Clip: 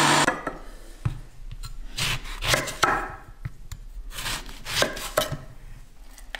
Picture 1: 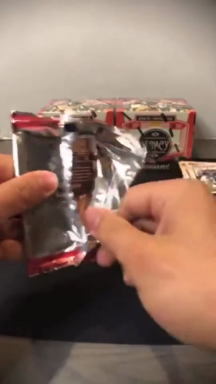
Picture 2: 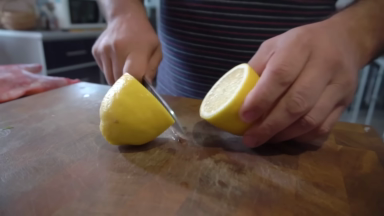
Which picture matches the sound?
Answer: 2